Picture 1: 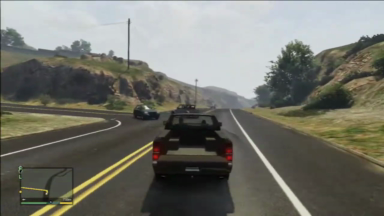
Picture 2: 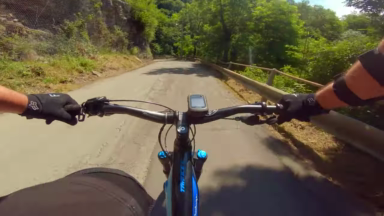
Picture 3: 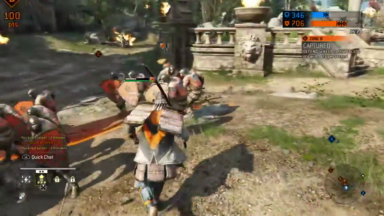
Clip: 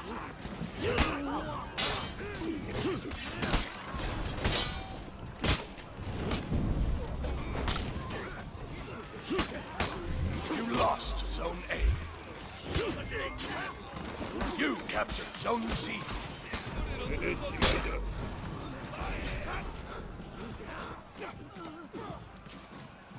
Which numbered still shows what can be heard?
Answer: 3